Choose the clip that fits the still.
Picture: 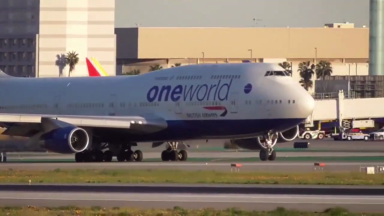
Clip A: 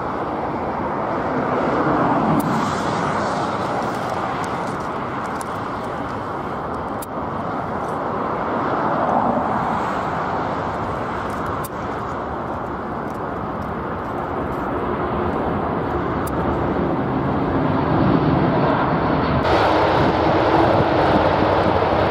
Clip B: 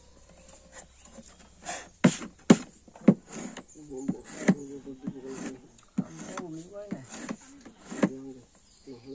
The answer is A